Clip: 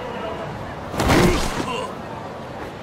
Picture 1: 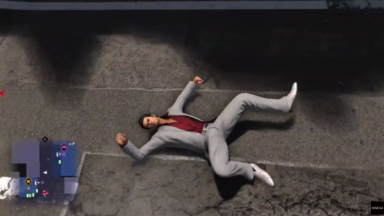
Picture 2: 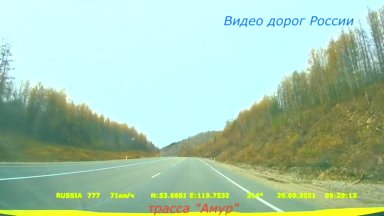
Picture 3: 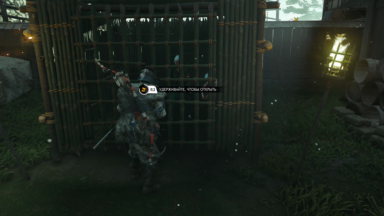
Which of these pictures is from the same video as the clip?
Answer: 1